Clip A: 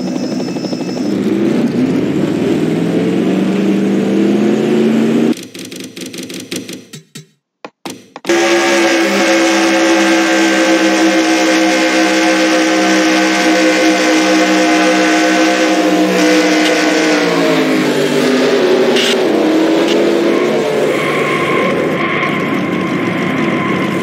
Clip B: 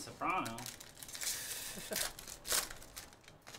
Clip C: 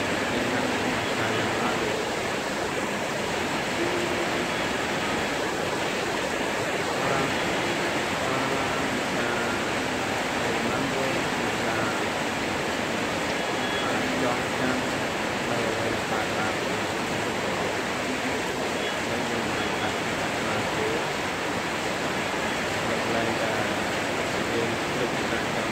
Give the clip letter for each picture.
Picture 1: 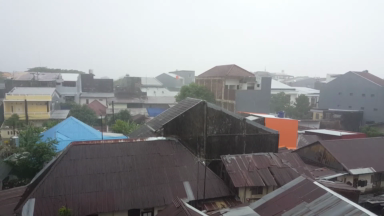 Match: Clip C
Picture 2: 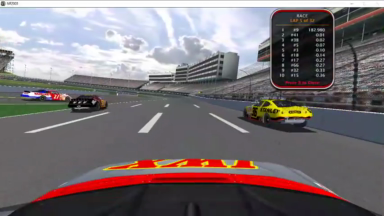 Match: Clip A